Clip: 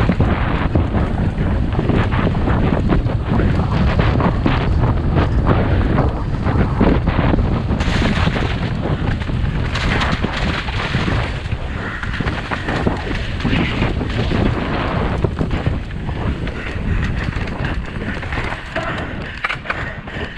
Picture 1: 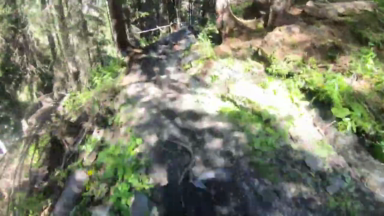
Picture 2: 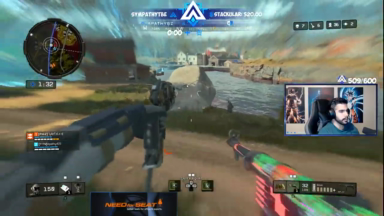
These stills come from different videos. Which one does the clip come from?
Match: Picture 1